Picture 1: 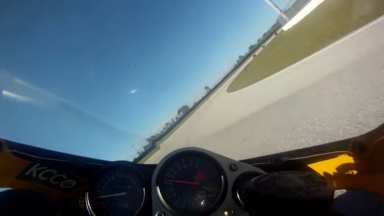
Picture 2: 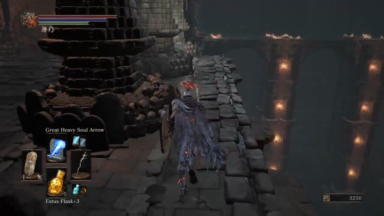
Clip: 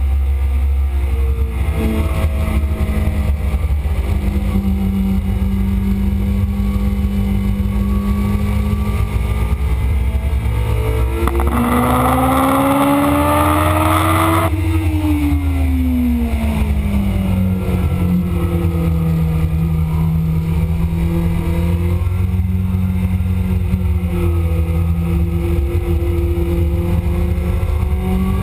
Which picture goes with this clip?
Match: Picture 1